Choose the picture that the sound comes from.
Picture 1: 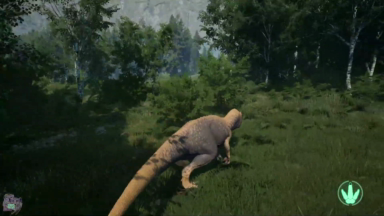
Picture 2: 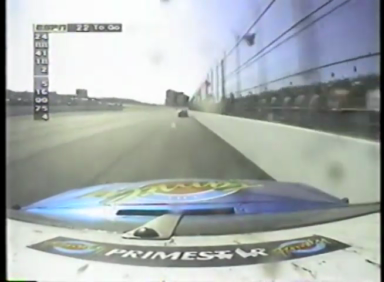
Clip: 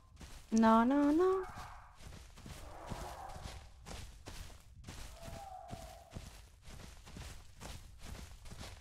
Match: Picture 1